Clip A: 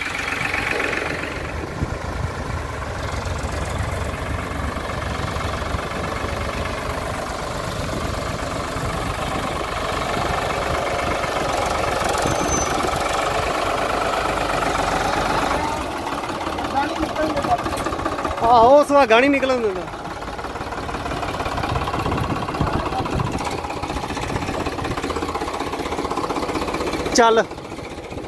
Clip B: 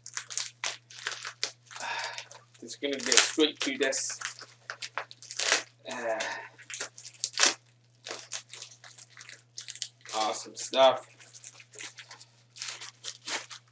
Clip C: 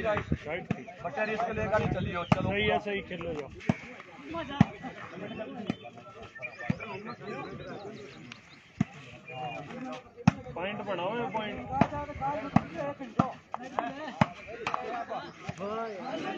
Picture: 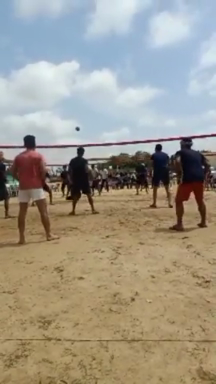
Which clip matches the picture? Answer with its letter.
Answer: C